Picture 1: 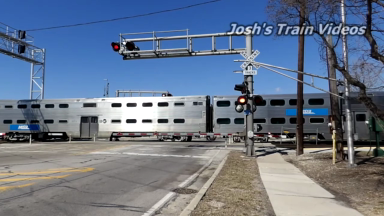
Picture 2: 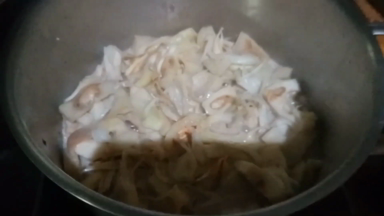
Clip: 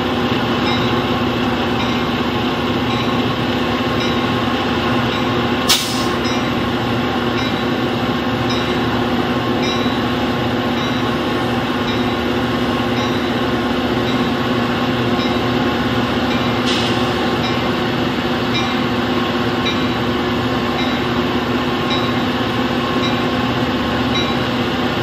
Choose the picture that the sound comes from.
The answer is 1